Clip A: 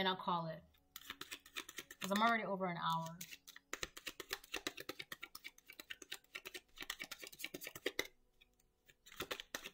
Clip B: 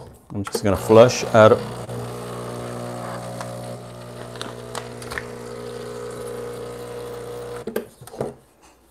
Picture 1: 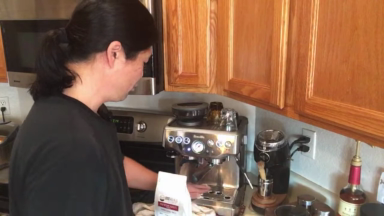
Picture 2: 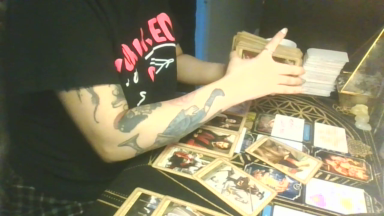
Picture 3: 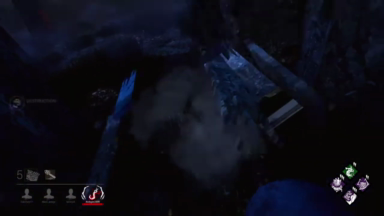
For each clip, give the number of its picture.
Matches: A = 2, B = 1